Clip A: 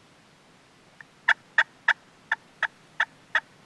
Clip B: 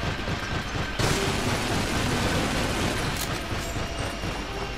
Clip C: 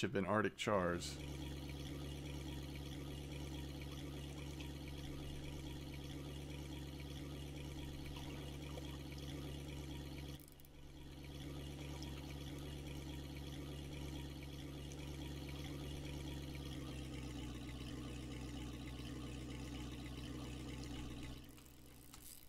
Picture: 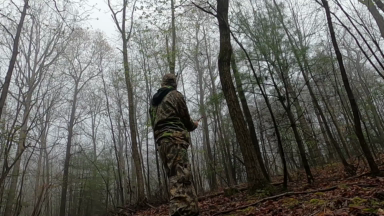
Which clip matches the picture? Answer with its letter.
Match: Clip A